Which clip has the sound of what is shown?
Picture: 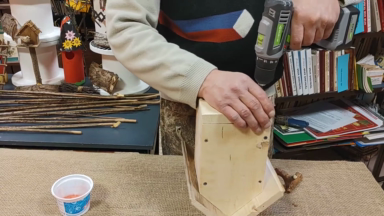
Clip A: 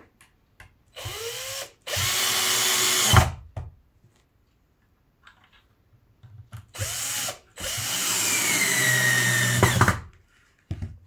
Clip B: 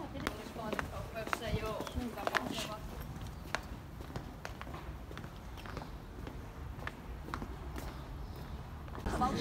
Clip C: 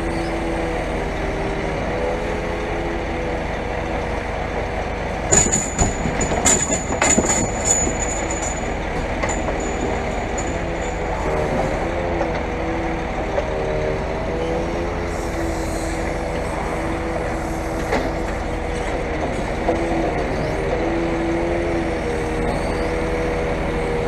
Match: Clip A